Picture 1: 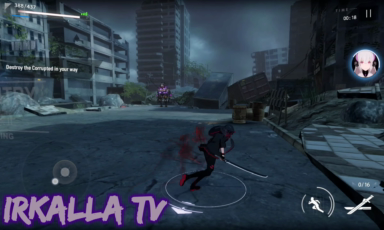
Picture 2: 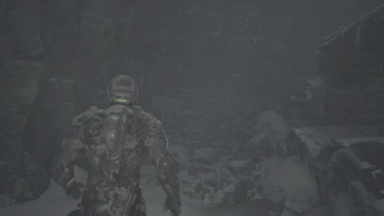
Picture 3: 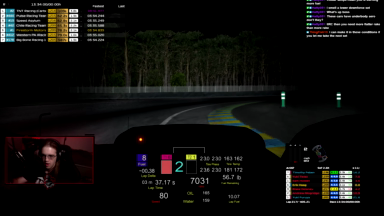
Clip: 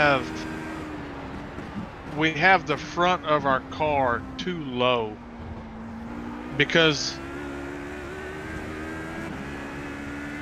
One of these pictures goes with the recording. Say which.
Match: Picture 3